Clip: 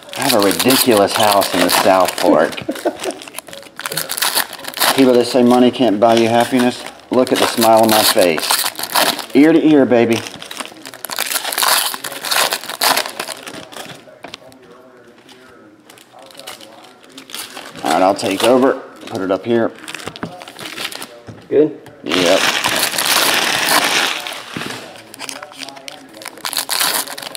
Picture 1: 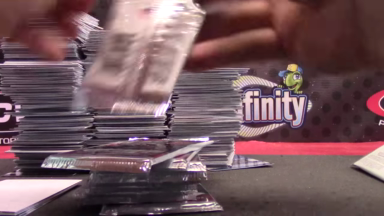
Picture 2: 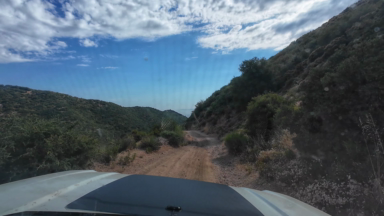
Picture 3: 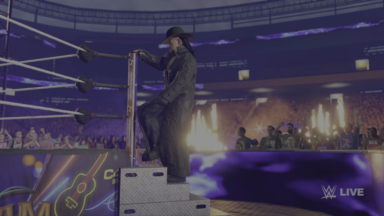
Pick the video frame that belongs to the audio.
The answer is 1